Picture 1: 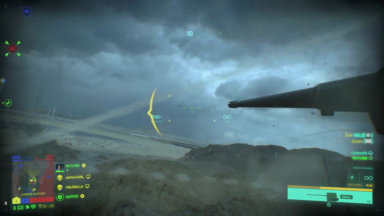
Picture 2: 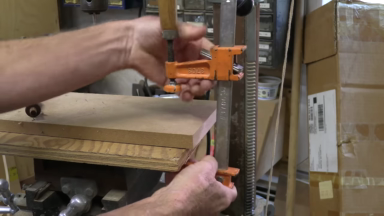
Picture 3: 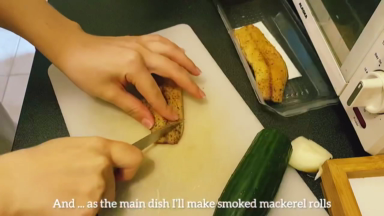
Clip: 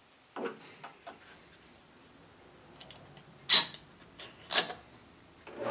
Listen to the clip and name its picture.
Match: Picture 2